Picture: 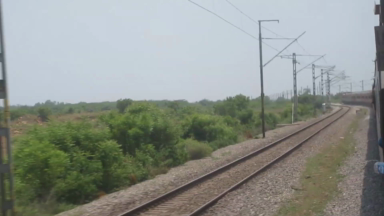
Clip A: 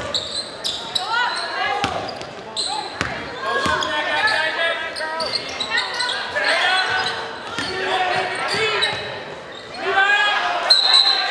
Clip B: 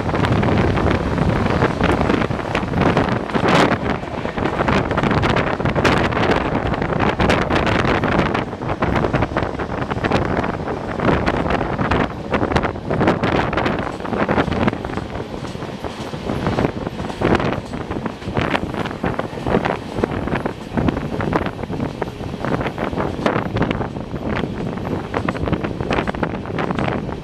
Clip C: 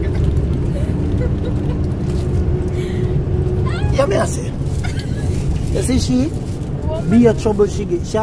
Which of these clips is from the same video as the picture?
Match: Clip B